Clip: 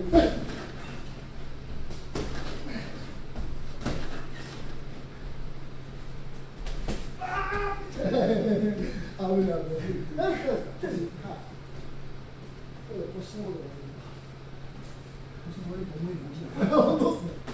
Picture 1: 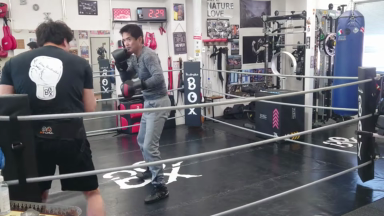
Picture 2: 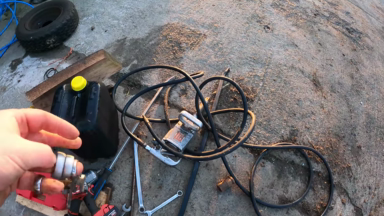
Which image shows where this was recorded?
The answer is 1